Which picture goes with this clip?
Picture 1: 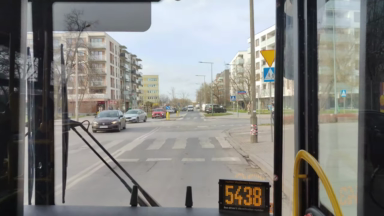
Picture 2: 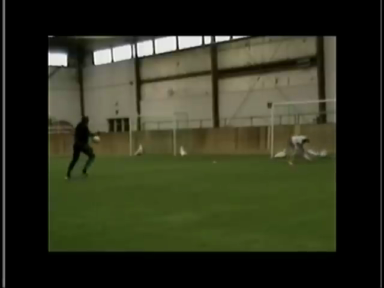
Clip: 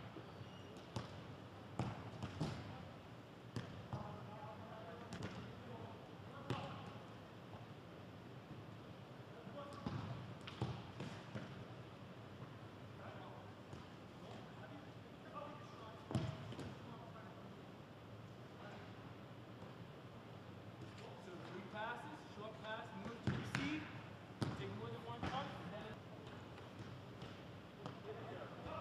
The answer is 2